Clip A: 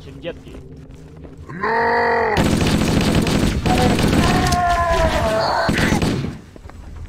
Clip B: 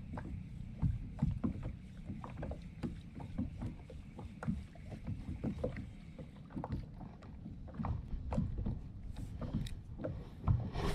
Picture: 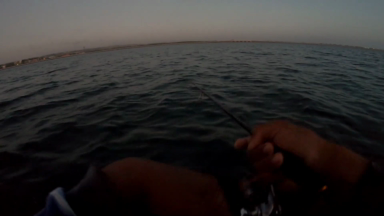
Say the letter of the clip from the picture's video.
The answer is B